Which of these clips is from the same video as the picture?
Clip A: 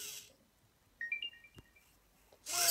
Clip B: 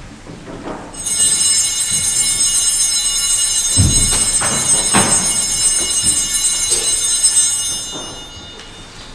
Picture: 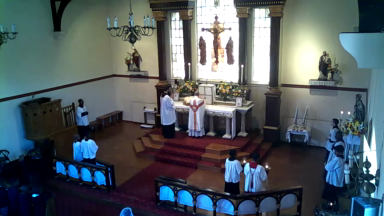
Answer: B